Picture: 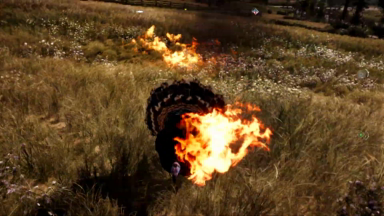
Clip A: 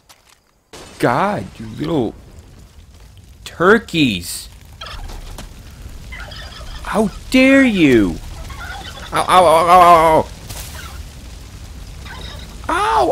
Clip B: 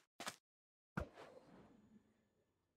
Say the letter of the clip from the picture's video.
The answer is A